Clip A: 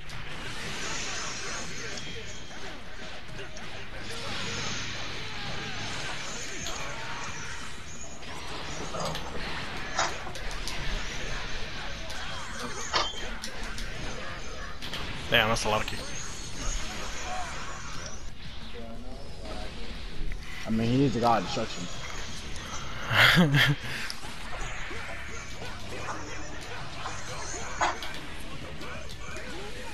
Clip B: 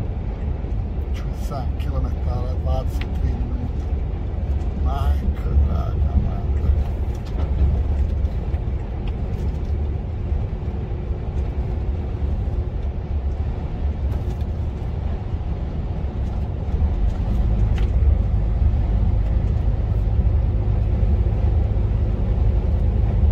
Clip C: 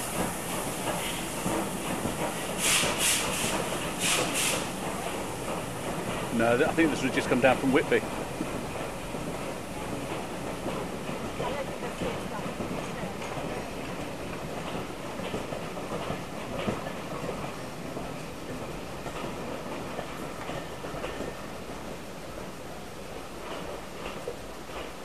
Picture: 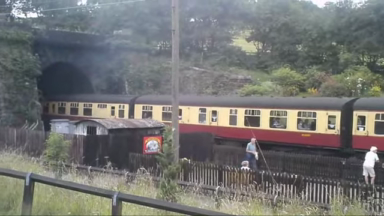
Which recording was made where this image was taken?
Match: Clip C